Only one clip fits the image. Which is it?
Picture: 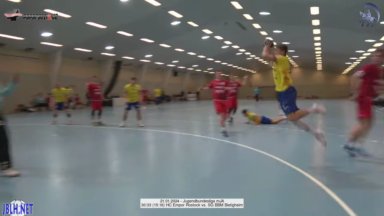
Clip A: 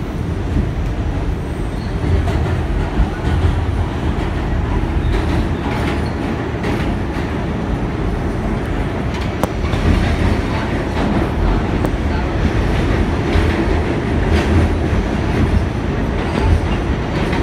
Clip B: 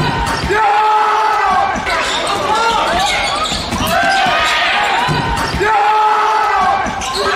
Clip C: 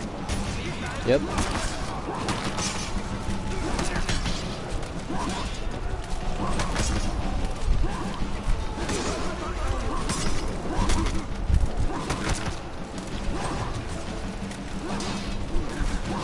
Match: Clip B